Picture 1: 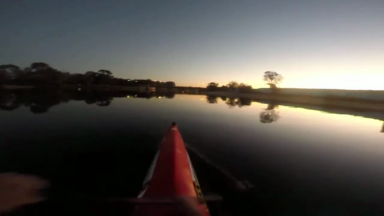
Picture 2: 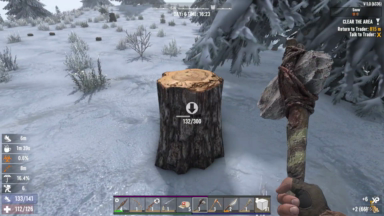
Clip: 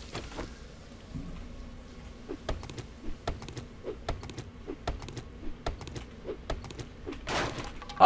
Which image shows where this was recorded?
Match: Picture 2